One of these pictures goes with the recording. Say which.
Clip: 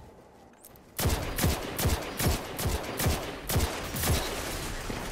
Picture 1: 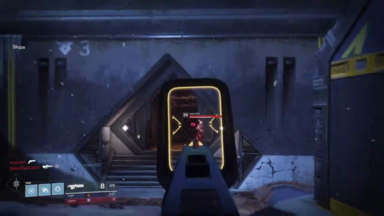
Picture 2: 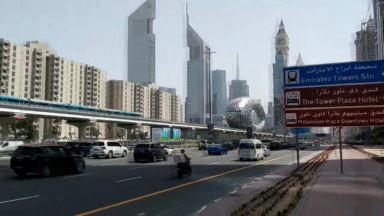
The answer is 1